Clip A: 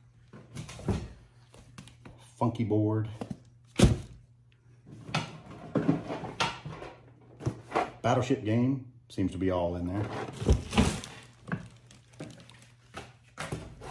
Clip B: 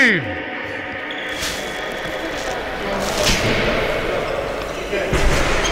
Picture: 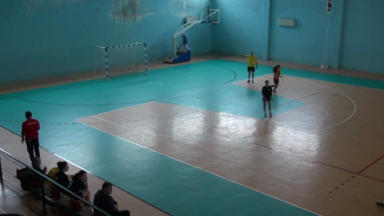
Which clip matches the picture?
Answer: B